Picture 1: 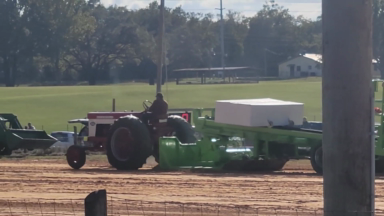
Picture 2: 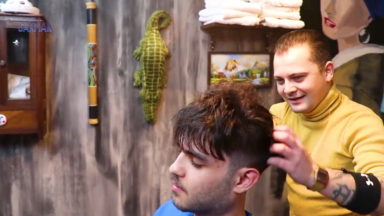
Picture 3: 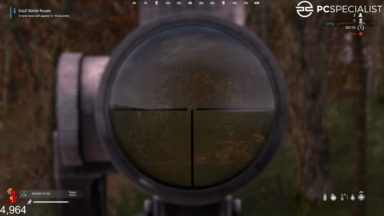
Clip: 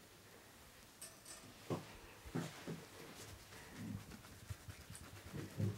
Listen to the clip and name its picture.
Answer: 2